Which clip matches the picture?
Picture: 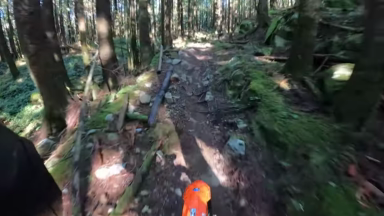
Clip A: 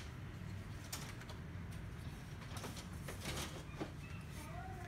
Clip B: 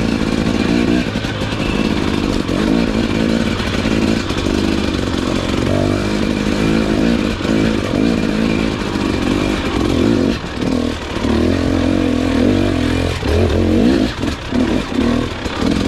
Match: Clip B